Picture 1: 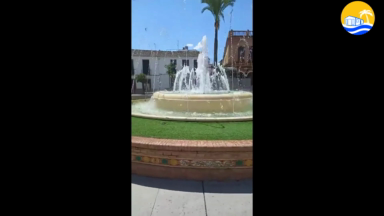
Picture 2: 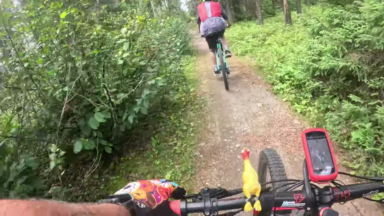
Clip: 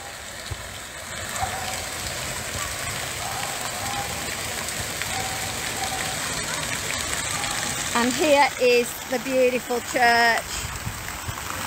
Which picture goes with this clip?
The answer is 1